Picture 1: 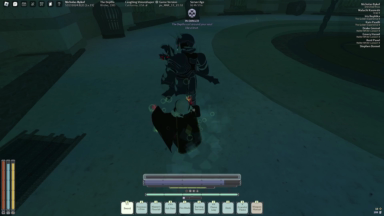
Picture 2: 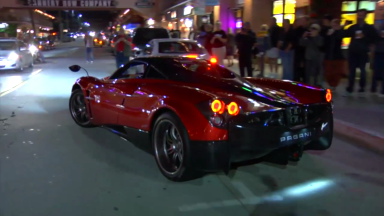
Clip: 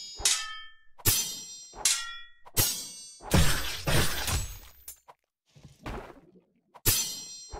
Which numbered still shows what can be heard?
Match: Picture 1